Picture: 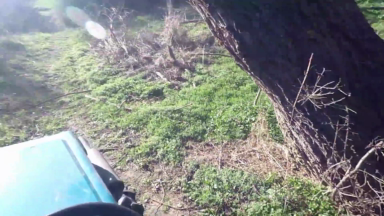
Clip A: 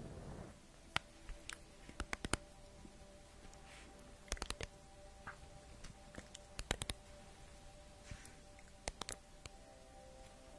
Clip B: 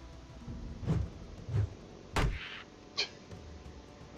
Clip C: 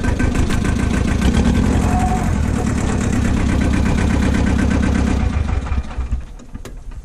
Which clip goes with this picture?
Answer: C